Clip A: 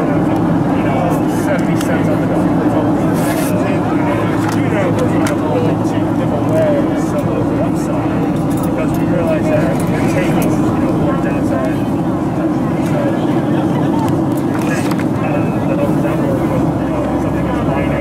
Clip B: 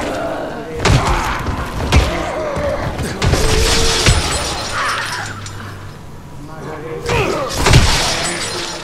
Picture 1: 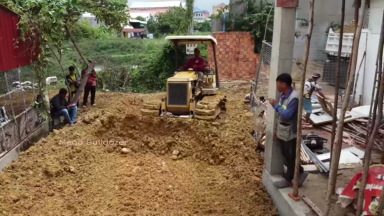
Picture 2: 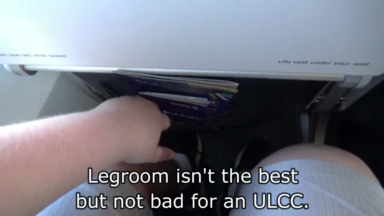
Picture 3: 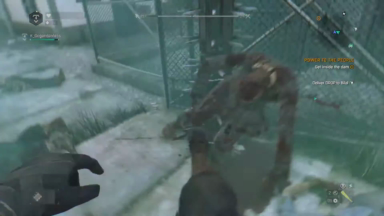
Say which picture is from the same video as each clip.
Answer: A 2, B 3